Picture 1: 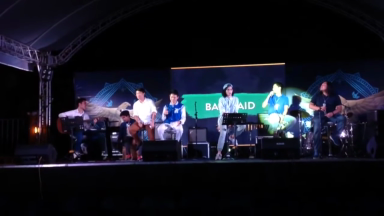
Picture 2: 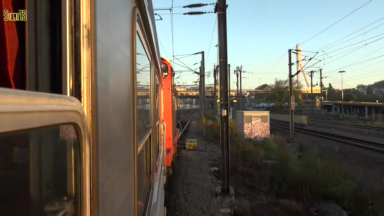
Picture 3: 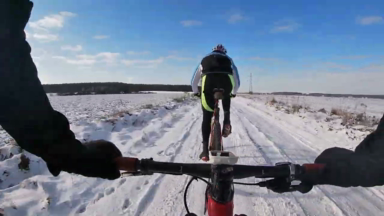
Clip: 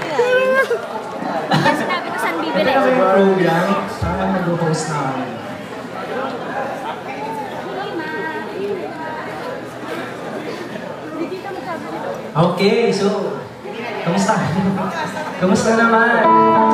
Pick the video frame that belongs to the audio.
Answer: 1